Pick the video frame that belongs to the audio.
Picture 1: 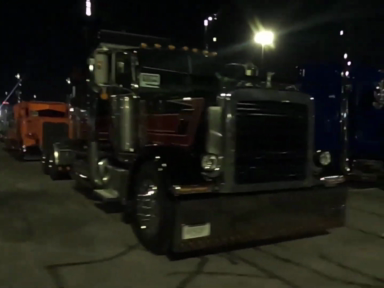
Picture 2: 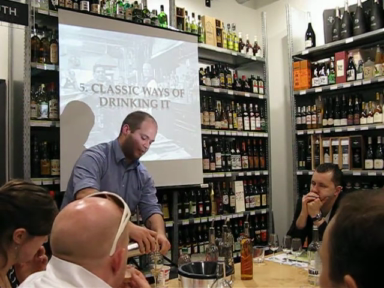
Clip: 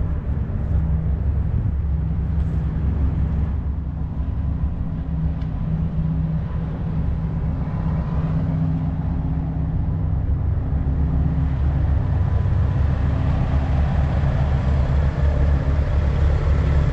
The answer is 1